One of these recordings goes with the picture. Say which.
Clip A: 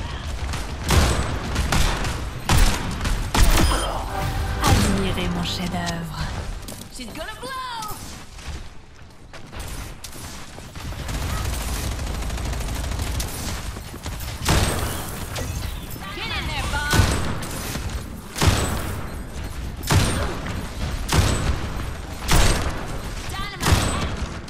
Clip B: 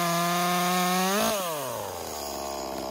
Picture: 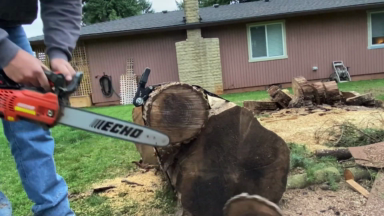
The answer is B